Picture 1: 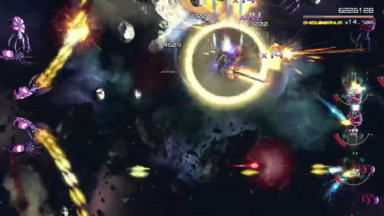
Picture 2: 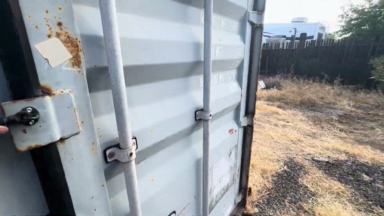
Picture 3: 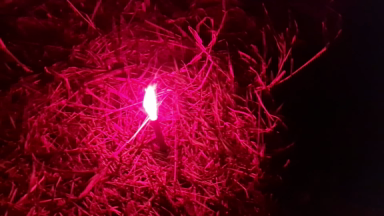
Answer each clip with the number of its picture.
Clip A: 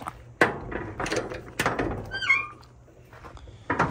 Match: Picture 2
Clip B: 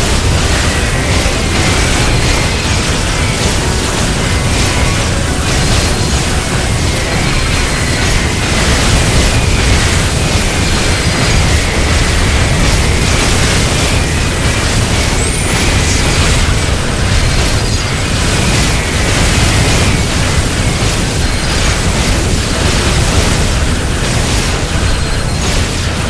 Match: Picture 1